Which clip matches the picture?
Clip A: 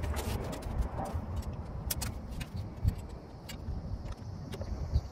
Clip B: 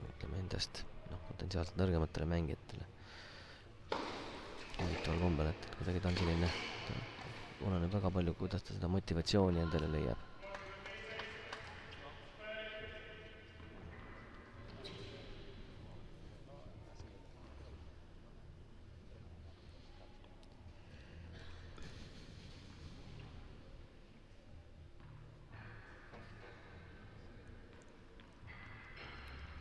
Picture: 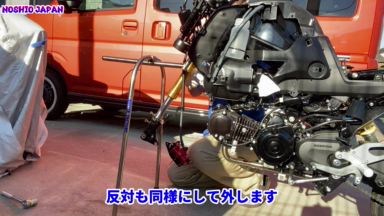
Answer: A